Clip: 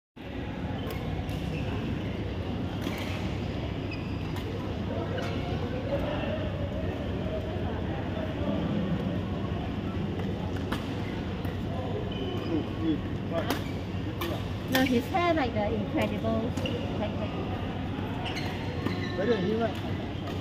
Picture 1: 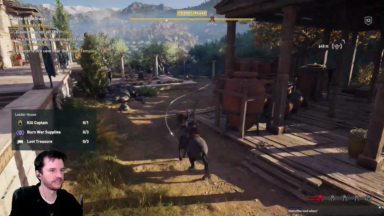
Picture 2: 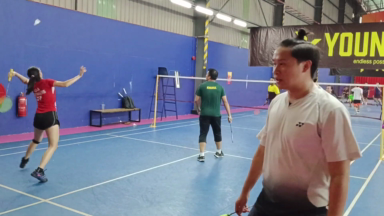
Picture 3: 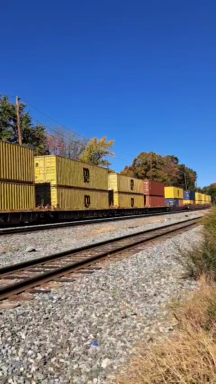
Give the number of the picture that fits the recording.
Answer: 2